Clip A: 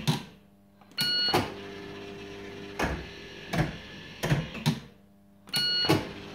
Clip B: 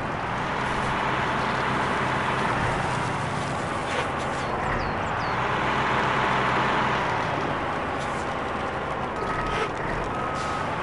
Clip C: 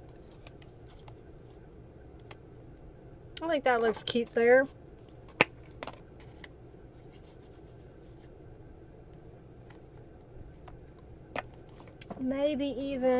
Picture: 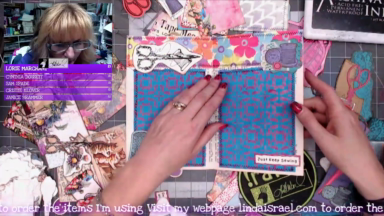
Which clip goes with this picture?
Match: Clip C